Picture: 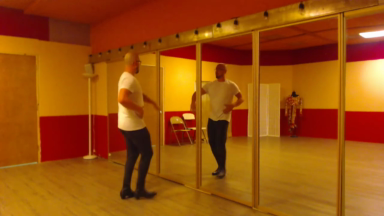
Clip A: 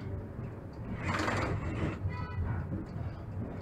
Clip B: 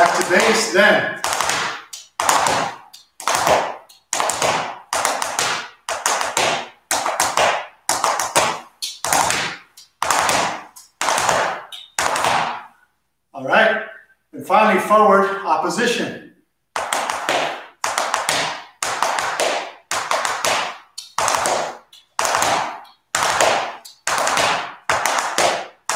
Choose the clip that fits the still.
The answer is B